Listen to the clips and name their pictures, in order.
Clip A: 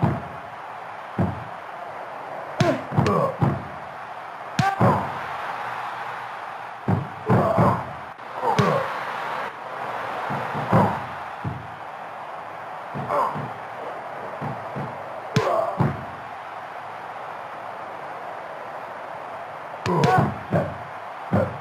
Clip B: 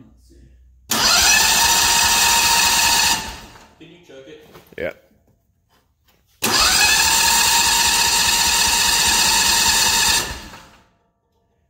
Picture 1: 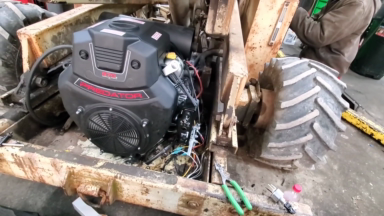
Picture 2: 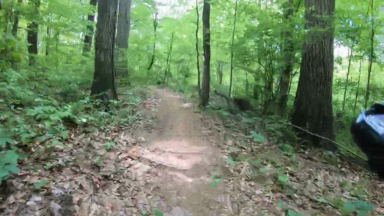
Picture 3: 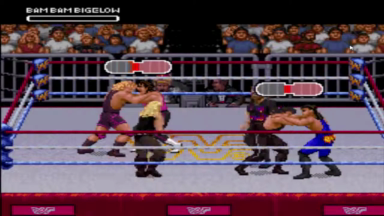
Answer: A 3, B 1